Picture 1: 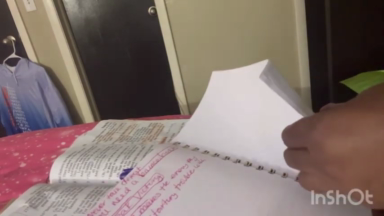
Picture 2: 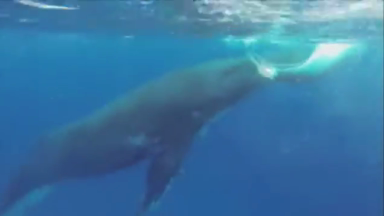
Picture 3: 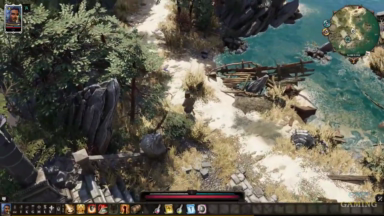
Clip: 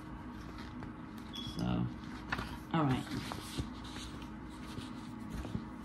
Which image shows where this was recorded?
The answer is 1